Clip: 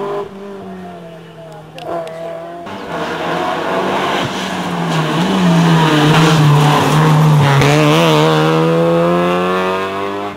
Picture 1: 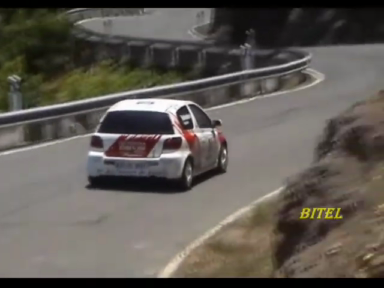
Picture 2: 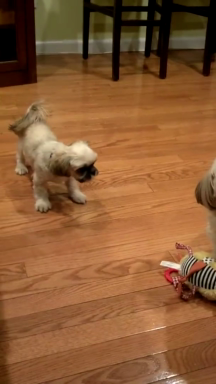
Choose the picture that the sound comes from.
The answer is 1